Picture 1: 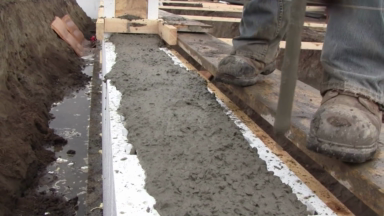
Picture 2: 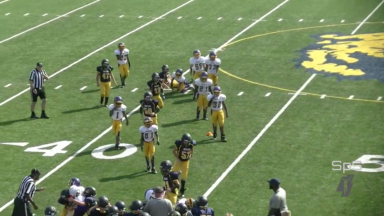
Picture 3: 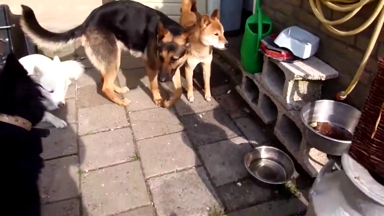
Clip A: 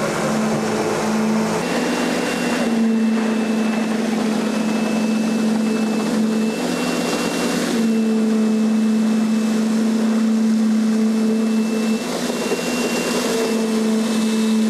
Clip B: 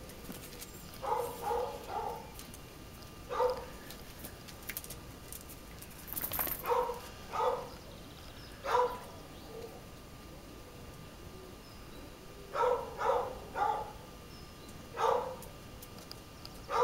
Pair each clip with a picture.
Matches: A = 1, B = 3